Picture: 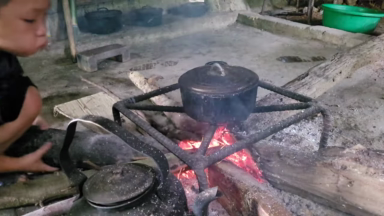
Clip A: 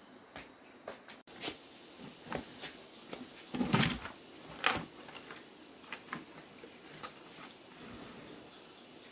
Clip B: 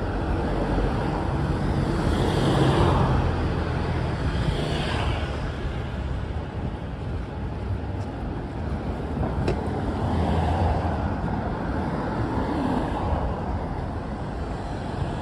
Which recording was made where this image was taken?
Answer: A